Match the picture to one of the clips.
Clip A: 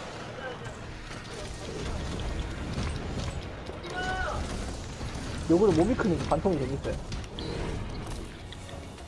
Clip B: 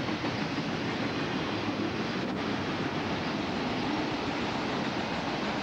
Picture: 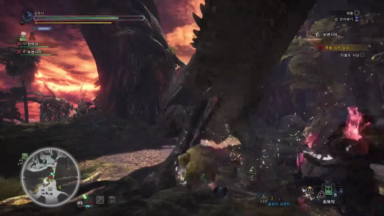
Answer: A